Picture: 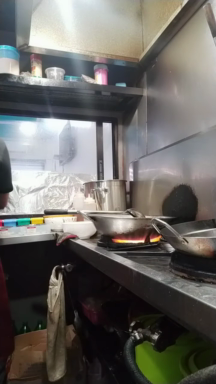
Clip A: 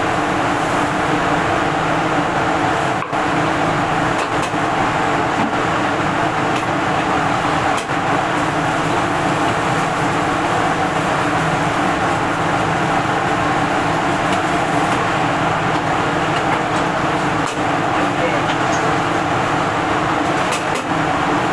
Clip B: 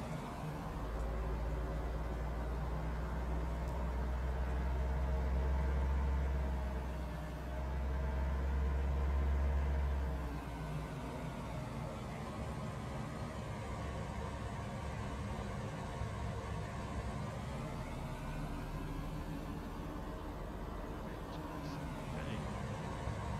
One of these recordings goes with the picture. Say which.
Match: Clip A